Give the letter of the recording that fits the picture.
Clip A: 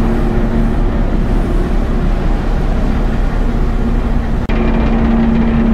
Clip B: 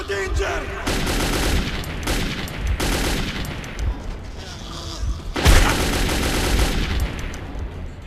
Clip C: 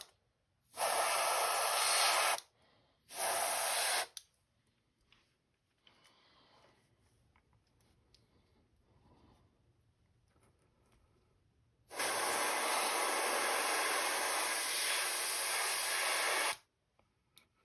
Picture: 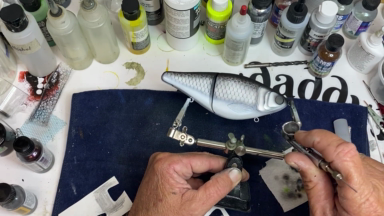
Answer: C